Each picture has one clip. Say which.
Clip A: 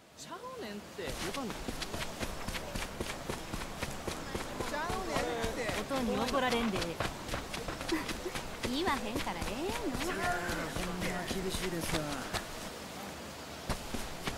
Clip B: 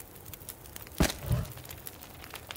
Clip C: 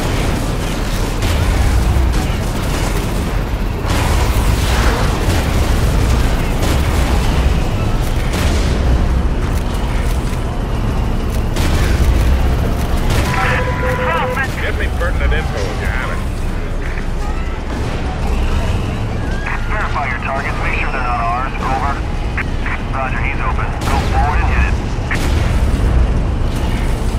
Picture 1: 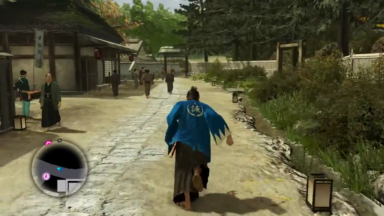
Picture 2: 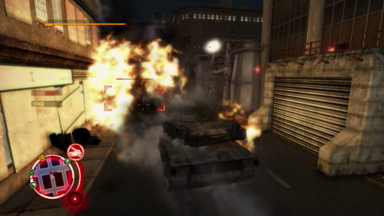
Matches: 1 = A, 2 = C